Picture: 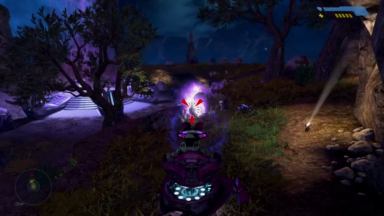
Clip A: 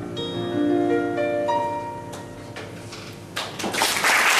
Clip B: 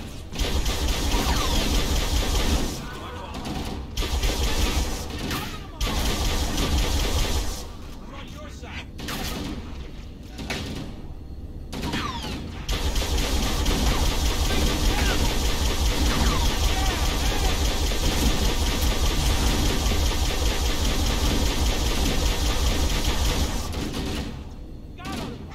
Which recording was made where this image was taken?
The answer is B